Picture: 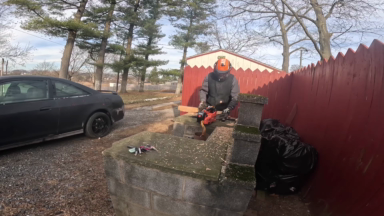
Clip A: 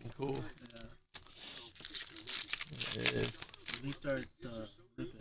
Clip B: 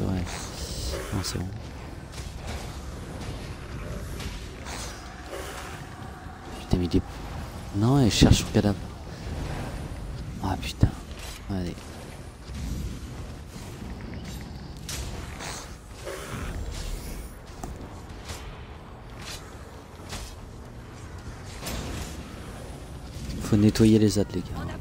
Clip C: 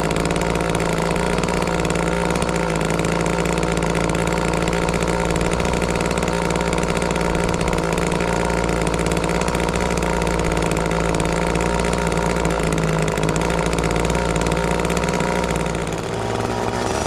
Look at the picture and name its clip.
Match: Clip C